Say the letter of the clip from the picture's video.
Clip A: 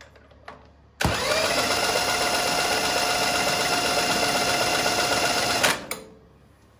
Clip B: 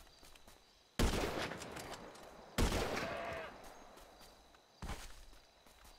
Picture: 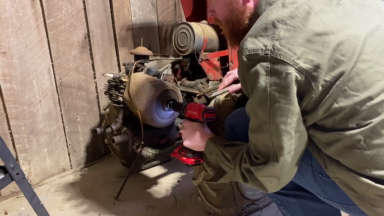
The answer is A